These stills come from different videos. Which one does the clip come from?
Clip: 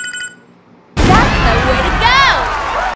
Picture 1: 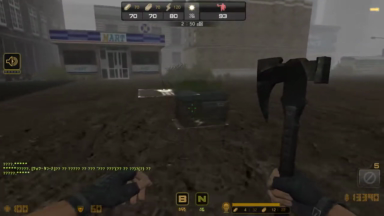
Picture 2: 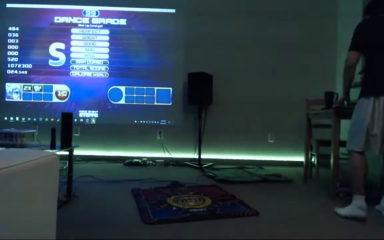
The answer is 2